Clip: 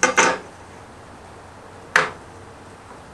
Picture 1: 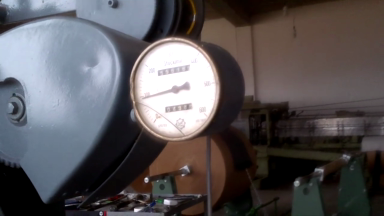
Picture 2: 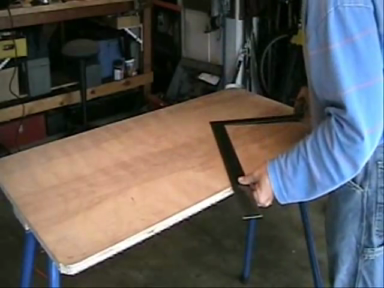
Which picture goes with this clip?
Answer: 2